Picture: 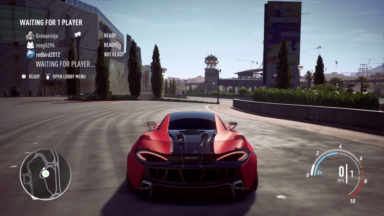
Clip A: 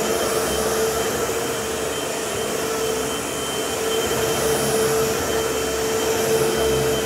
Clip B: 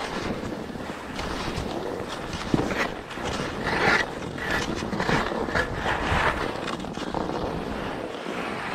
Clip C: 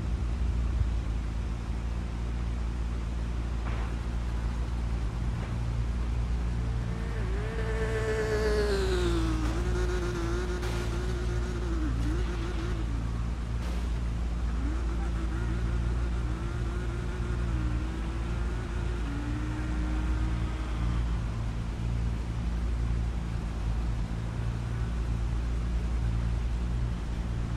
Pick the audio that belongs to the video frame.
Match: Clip C